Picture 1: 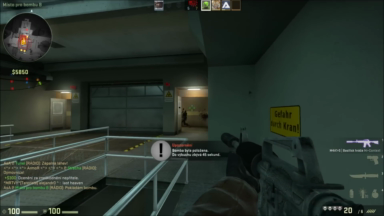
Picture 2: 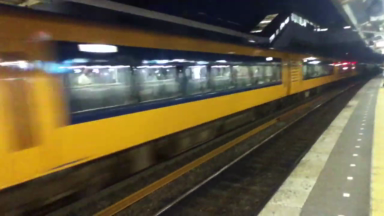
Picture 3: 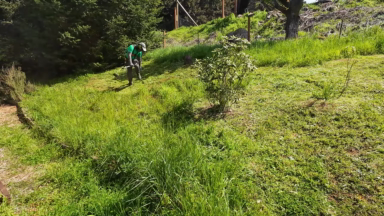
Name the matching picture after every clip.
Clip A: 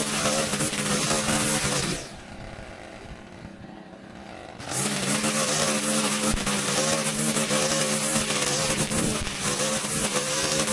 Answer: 3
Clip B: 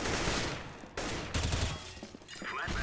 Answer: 1